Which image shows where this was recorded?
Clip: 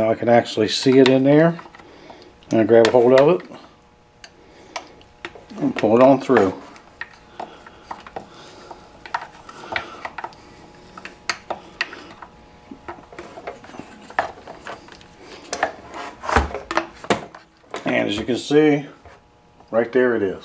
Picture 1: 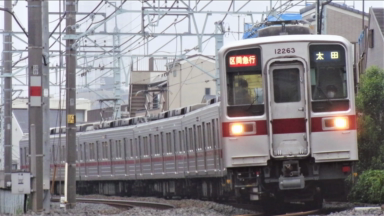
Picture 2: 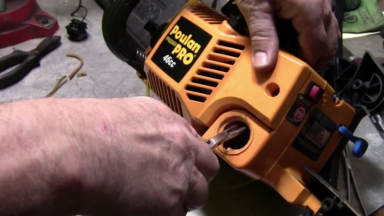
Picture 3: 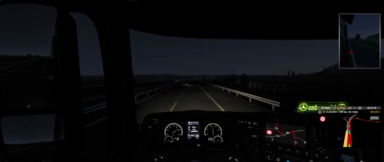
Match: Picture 2